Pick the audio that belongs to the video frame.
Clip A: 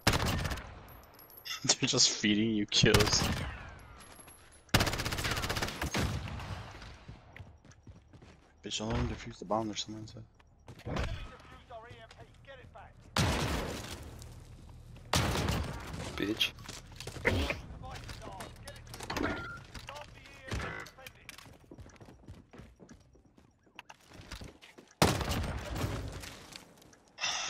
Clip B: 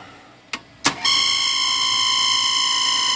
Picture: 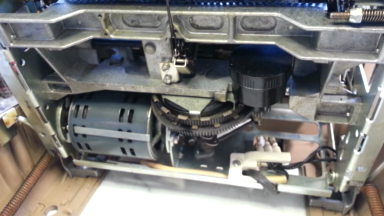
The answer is B